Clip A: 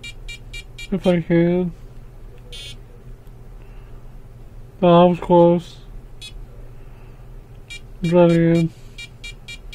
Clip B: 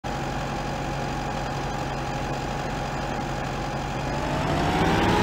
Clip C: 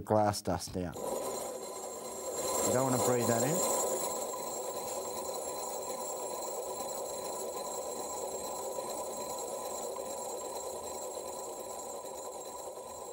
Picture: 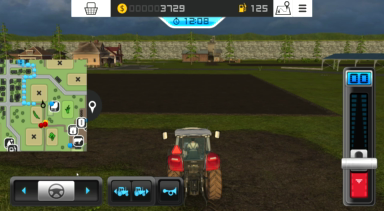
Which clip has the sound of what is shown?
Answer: B